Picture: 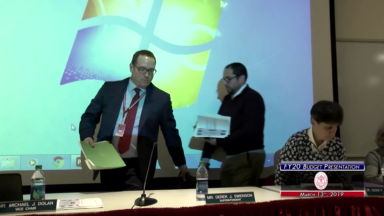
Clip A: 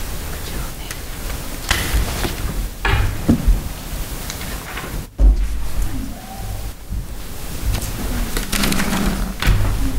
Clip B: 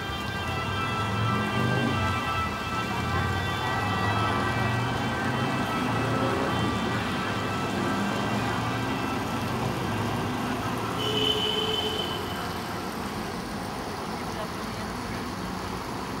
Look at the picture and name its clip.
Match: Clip A